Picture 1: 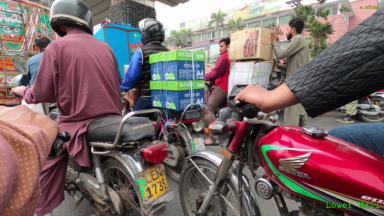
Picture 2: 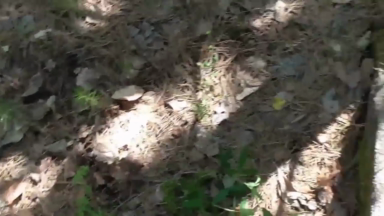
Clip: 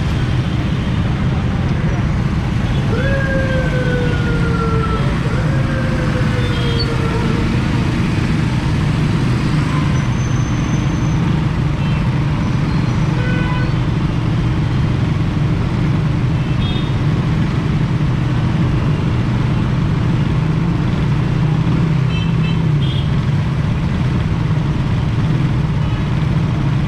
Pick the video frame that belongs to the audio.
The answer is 1